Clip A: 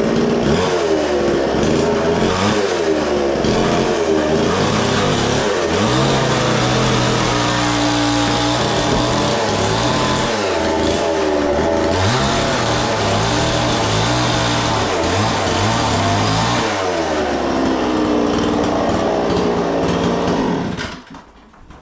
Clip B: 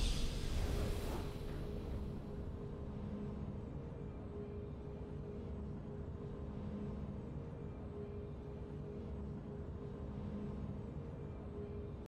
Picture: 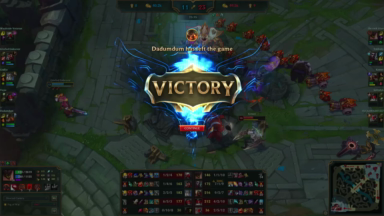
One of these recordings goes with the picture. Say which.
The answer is B